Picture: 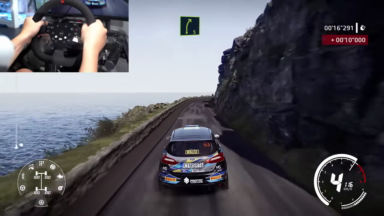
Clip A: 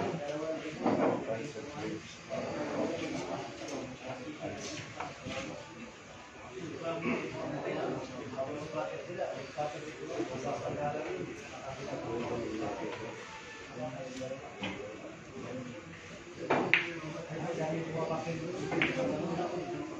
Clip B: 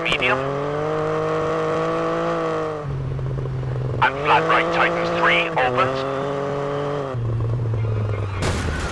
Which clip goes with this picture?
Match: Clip B